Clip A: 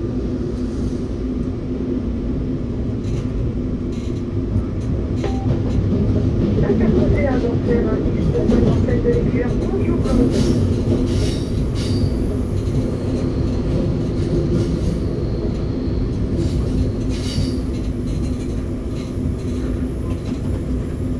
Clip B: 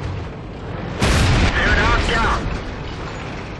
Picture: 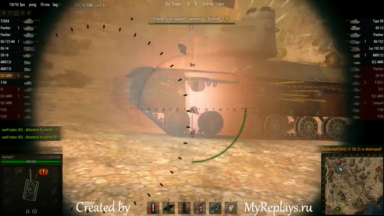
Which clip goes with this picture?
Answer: B